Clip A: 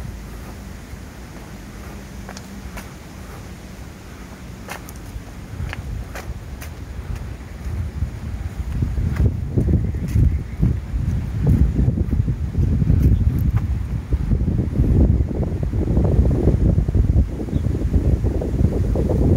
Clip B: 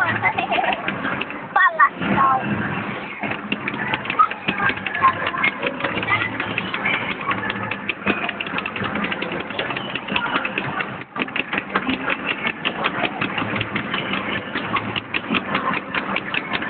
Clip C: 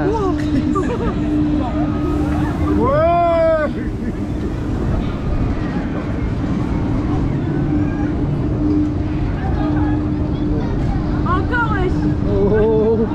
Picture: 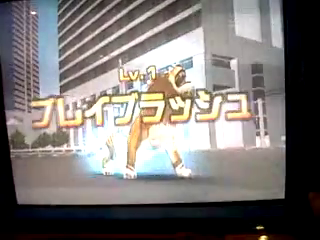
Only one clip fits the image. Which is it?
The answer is B